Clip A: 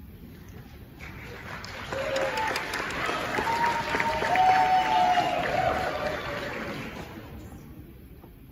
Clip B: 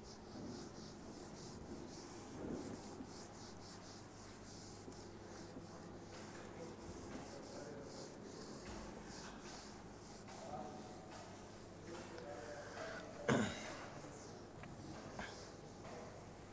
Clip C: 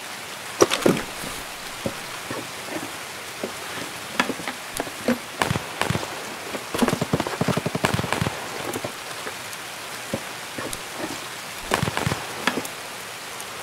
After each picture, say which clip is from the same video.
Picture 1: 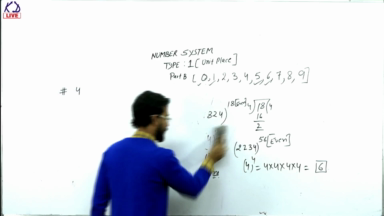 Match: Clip B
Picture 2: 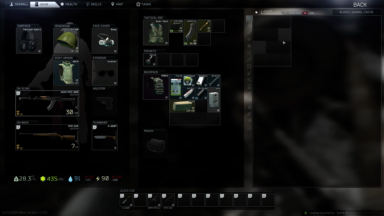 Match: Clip C